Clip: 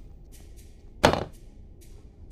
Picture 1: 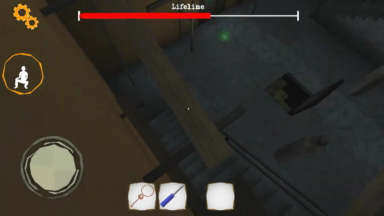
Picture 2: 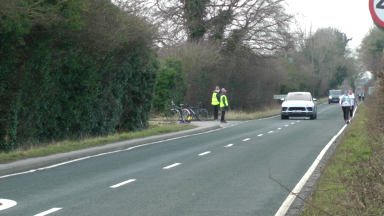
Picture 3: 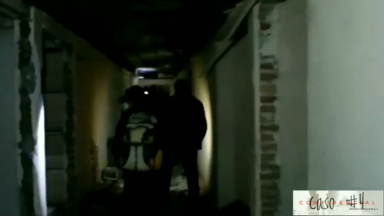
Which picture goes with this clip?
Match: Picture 1